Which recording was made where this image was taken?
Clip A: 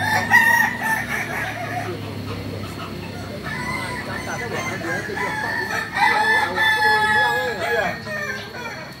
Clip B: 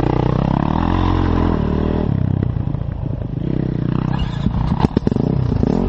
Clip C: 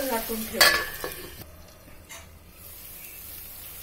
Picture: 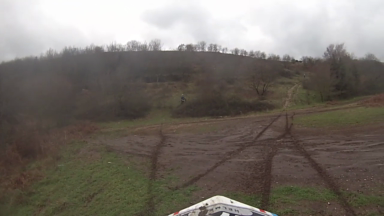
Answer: B